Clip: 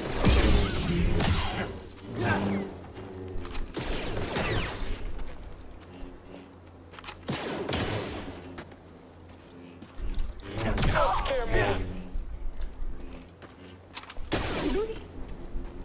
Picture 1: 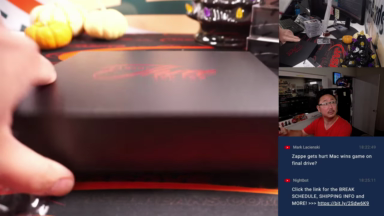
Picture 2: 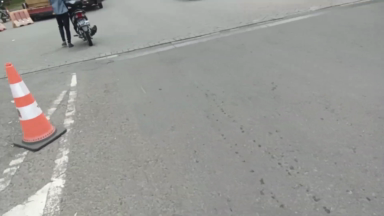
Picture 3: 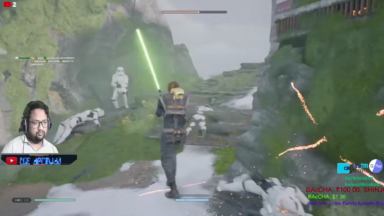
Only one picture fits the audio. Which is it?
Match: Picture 3